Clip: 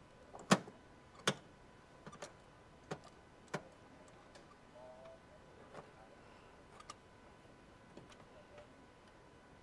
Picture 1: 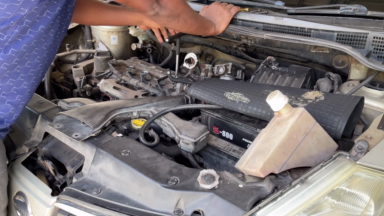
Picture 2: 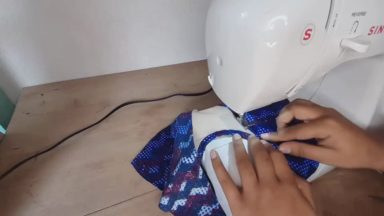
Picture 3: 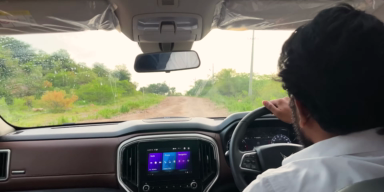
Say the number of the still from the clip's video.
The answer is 1